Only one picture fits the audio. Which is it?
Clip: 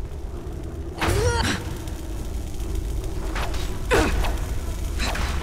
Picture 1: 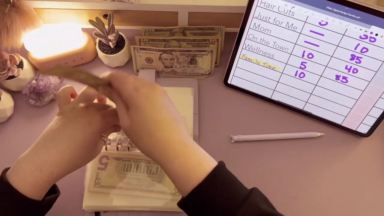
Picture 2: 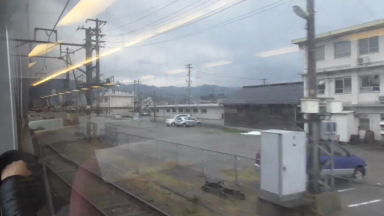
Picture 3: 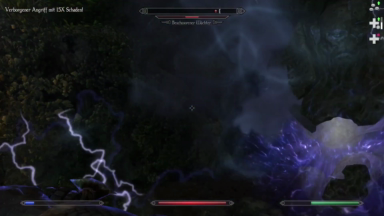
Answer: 3